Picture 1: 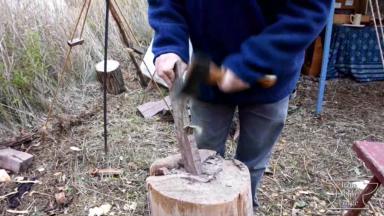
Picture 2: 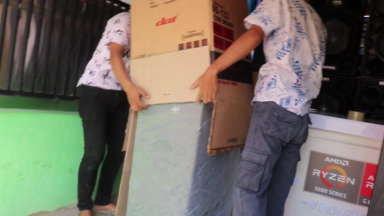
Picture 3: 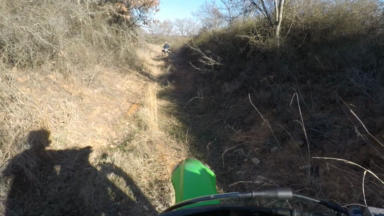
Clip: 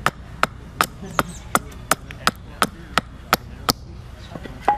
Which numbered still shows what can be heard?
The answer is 1